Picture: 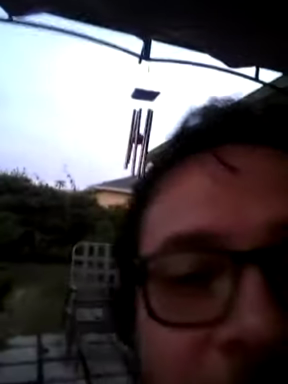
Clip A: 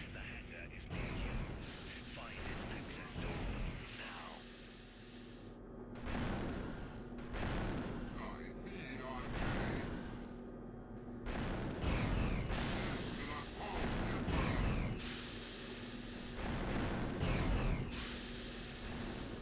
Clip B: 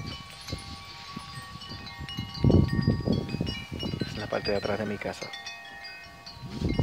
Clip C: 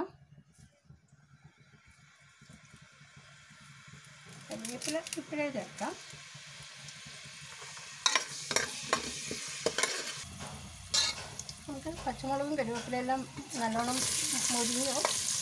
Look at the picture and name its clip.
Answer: B